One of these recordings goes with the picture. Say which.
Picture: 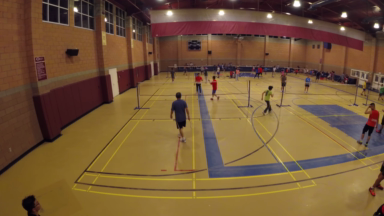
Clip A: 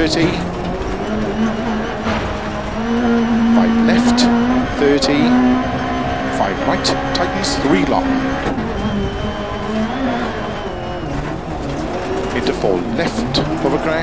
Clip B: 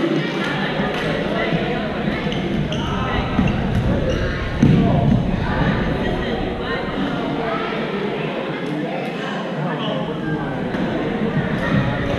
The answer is B